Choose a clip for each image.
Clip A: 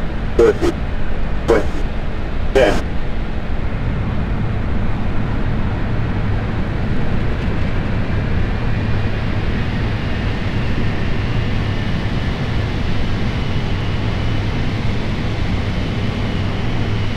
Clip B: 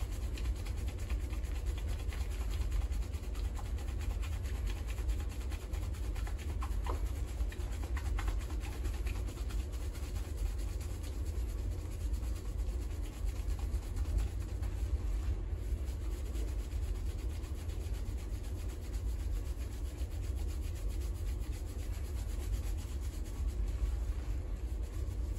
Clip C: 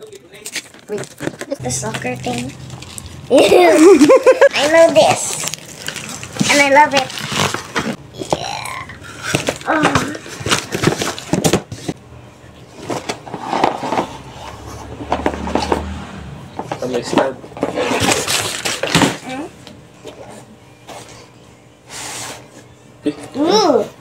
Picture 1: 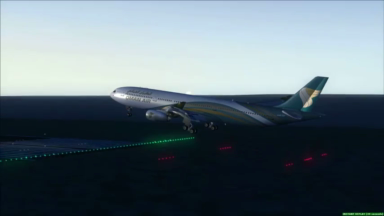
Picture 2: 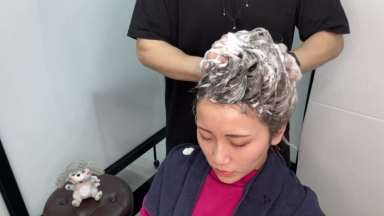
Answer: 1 A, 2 B